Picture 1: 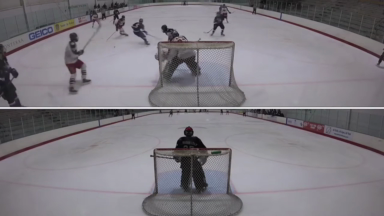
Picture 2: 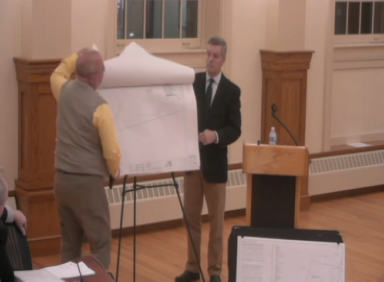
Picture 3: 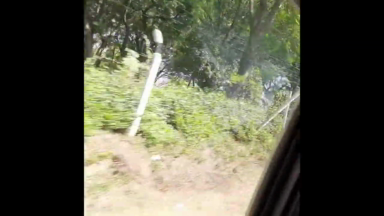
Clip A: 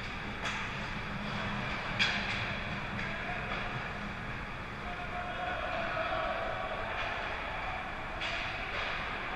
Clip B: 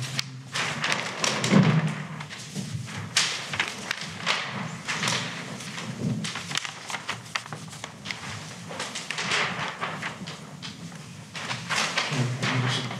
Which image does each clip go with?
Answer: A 1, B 2